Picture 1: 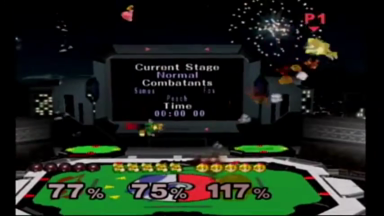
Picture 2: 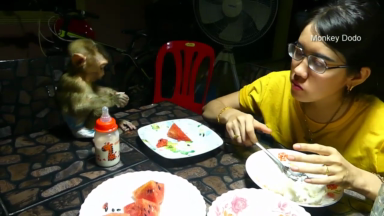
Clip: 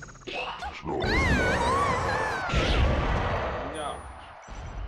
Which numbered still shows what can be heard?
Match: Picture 1